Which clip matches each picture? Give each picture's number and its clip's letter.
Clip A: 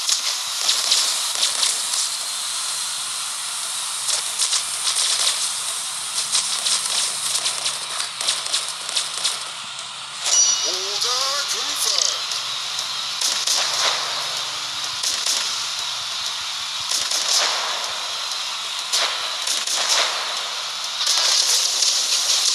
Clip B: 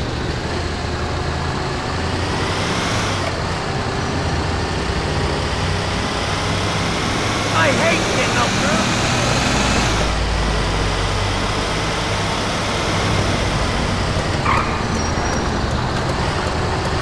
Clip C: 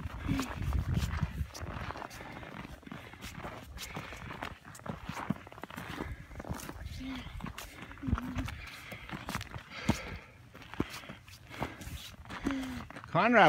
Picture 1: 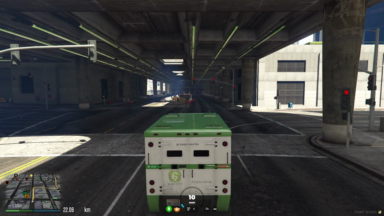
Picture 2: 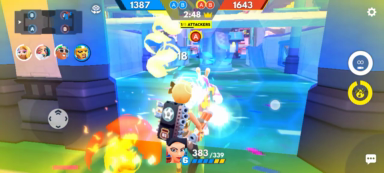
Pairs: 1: B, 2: A